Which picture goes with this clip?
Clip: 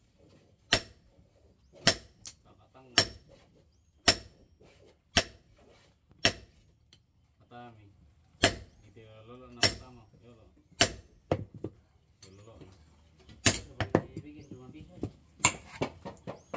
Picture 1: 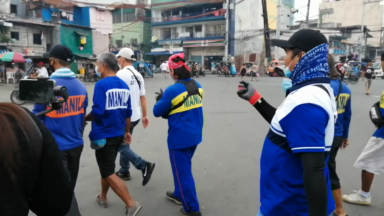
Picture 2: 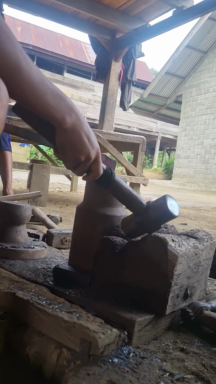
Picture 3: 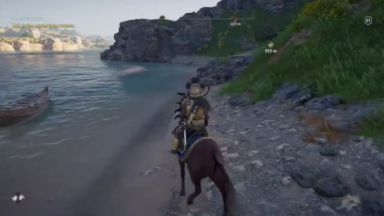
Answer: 2